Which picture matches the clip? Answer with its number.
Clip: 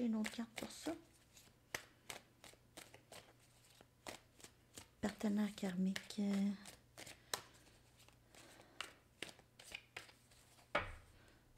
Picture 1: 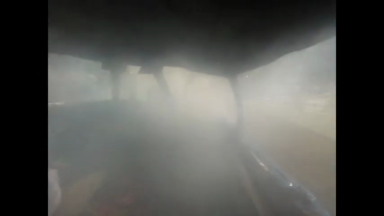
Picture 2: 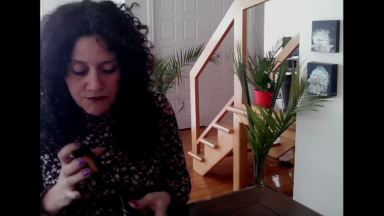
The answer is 2